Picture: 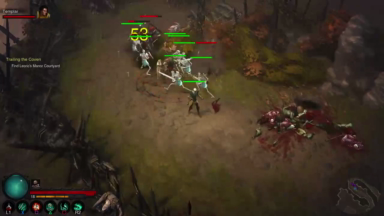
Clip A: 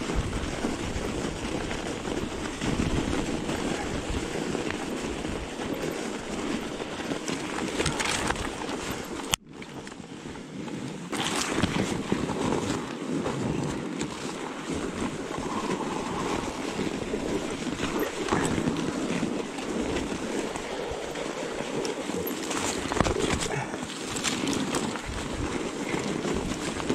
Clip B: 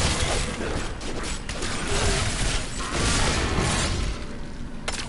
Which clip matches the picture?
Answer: B